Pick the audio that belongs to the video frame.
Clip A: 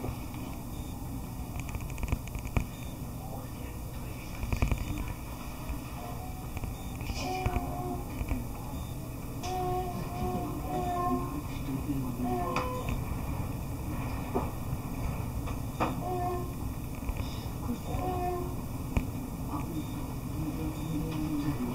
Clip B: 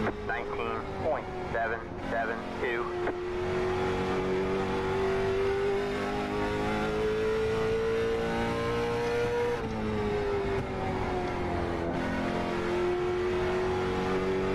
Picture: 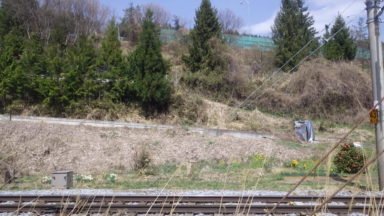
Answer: A